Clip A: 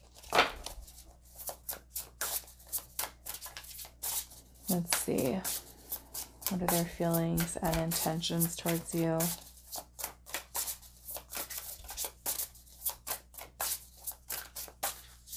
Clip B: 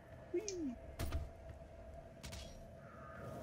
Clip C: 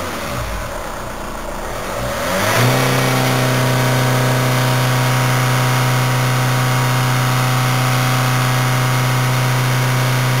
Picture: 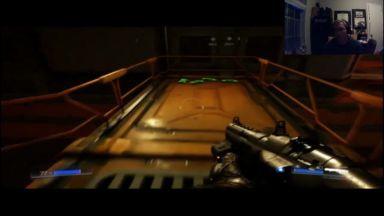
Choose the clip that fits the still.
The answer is B